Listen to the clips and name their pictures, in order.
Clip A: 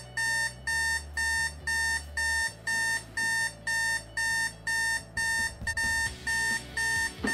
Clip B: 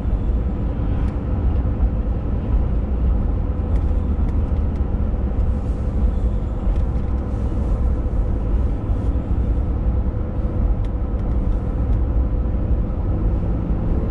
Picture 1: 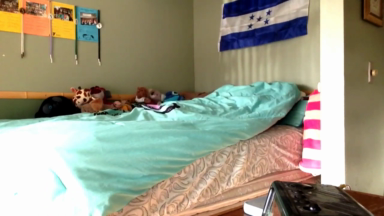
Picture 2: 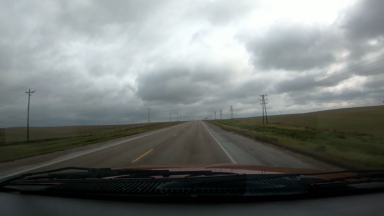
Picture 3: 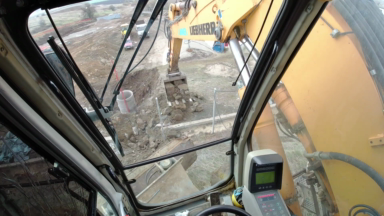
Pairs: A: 1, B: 2